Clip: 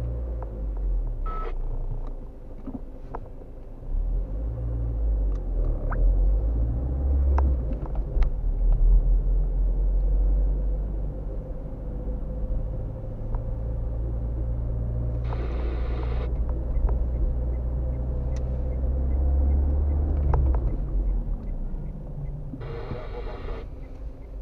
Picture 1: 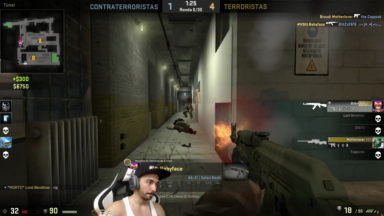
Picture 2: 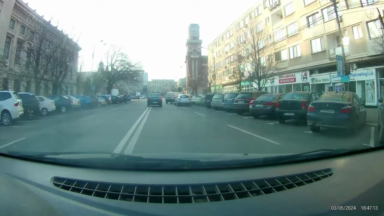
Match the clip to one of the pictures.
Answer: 2